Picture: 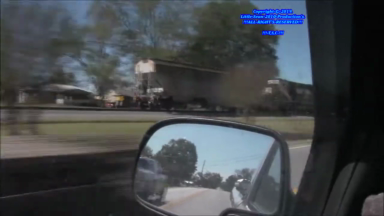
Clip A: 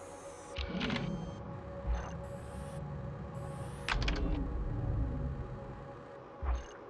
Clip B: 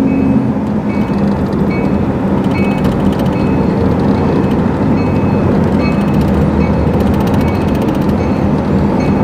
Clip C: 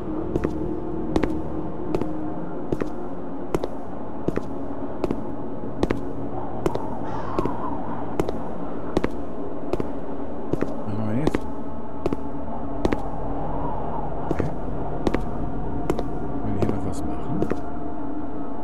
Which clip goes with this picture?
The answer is B